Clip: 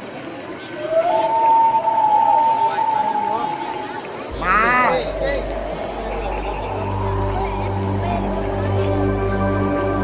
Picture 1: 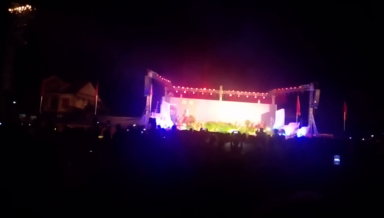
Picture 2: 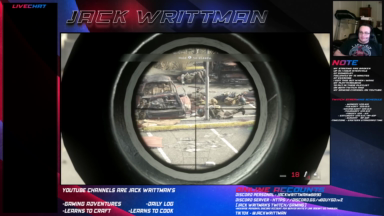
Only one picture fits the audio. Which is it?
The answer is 1